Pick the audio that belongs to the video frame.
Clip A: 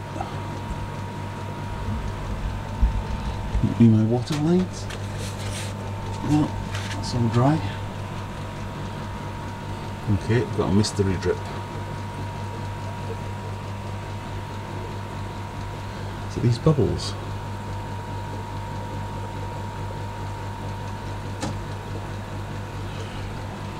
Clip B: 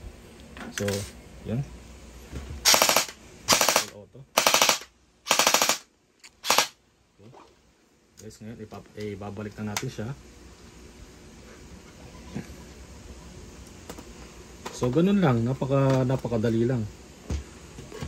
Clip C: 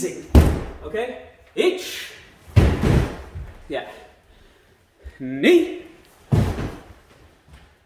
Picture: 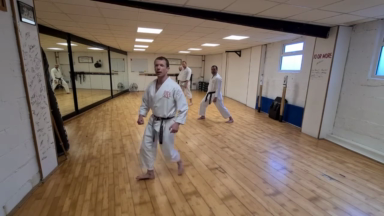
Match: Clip C